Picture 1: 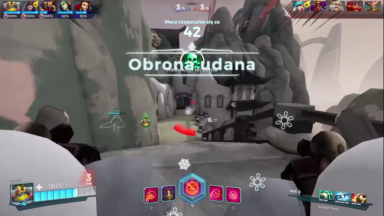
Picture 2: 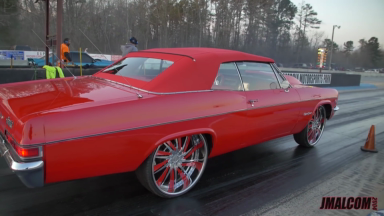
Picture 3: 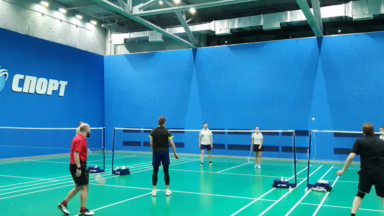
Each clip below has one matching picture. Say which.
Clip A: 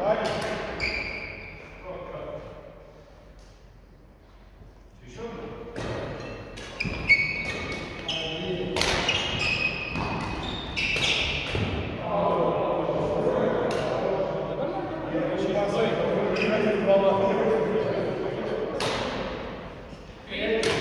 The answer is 3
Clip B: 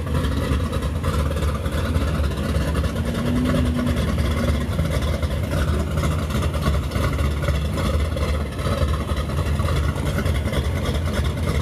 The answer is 2